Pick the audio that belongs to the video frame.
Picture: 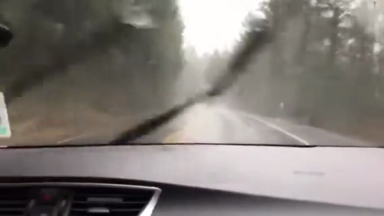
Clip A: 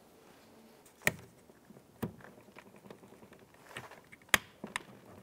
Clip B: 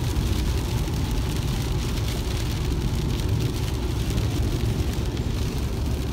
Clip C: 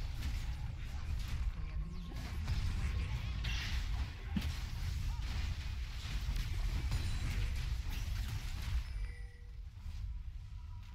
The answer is B